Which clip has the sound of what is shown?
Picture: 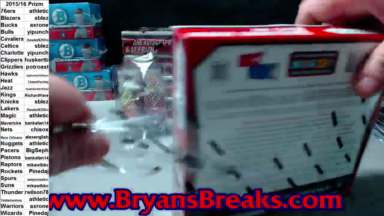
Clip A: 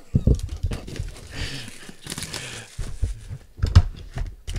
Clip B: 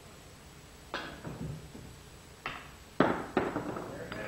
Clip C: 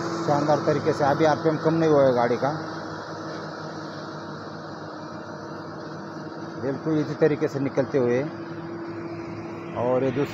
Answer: A